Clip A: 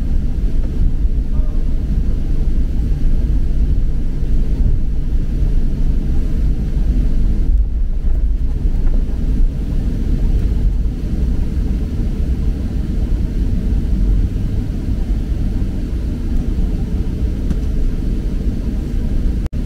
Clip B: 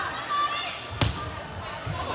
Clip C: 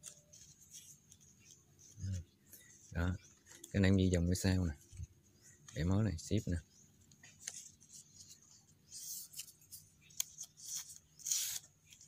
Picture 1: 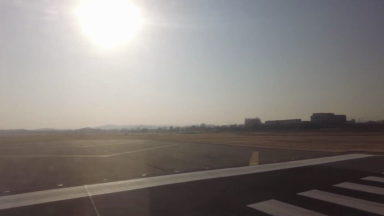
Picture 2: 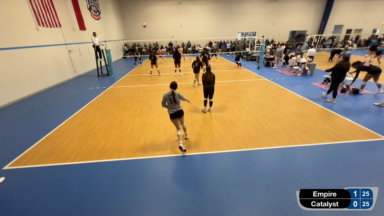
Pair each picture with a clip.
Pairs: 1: A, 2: B